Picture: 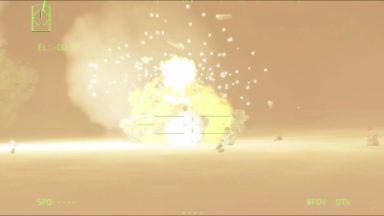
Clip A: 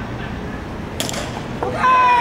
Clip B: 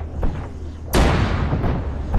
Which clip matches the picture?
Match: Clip B